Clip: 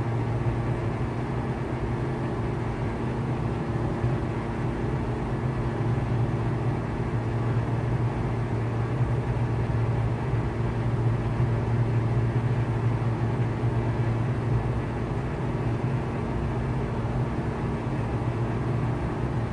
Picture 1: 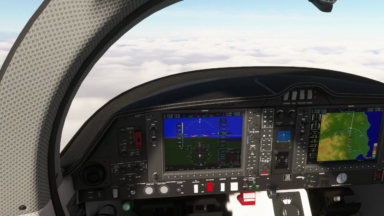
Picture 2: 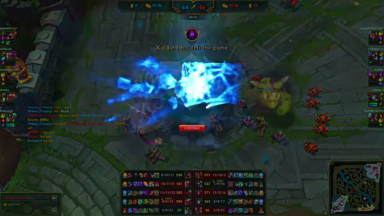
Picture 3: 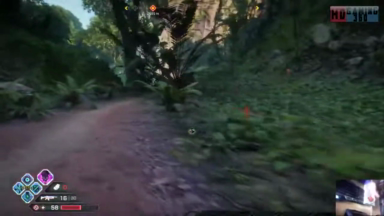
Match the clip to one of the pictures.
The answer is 1